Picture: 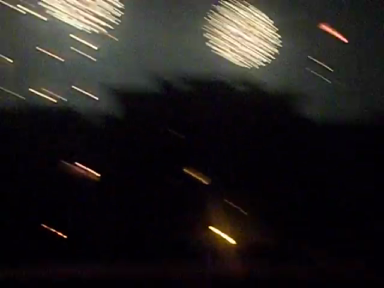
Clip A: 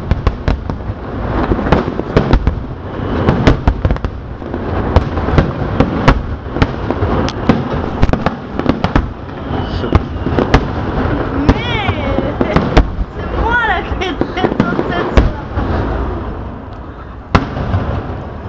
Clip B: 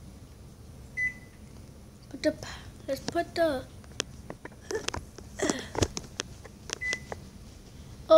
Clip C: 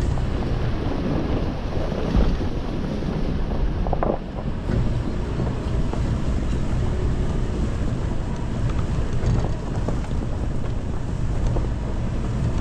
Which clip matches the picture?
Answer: A